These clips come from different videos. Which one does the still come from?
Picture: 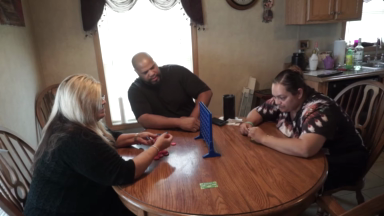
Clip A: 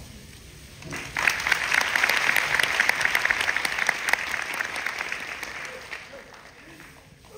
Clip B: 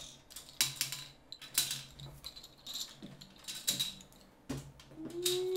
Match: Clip B